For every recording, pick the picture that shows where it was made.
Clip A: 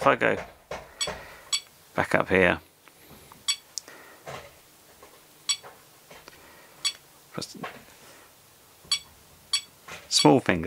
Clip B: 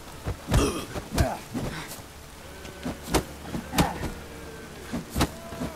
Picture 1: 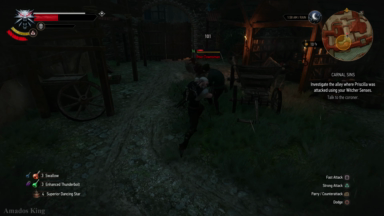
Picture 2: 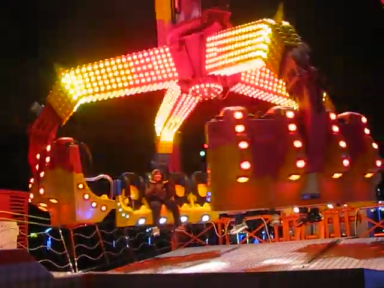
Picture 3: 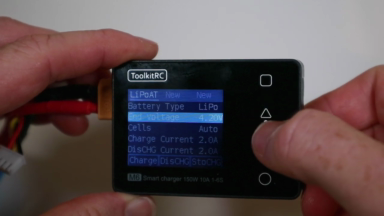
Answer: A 3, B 1